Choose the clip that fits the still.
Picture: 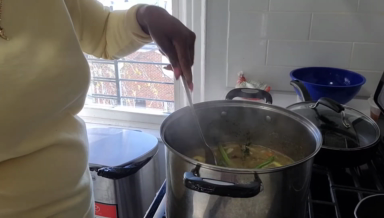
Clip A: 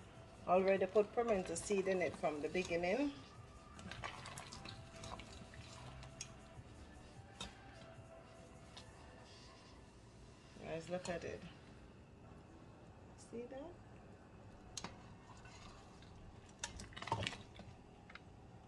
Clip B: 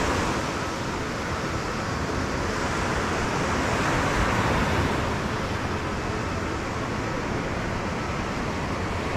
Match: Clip A